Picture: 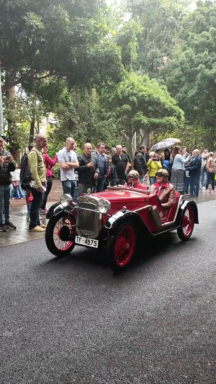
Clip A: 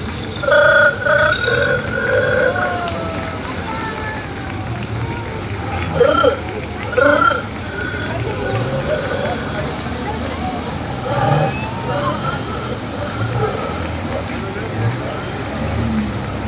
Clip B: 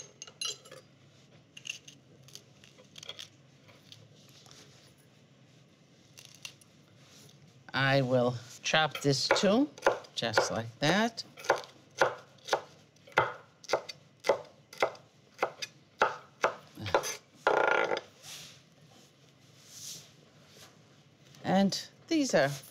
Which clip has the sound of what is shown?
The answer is A